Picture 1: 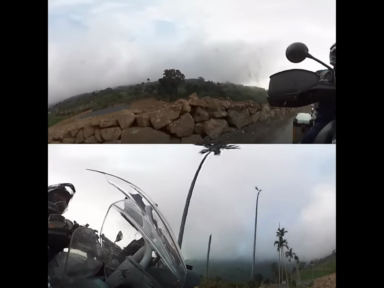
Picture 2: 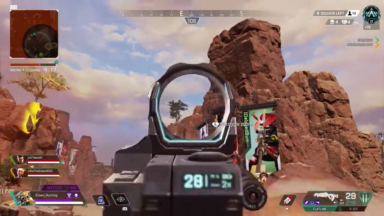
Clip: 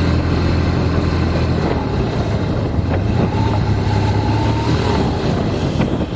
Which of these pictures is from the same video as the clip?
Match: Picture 1